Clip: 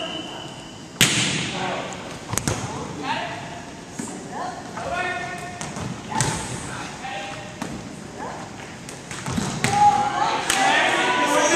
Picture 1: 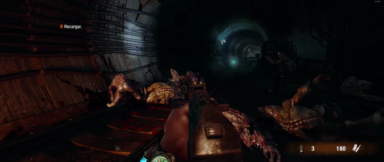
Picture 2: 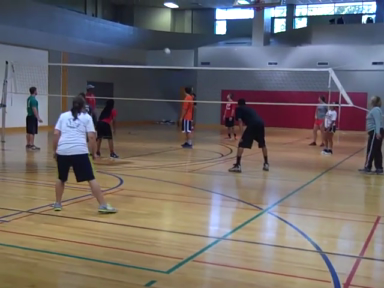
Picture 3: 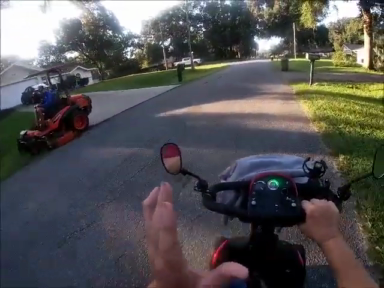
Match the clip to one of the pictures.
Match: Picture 2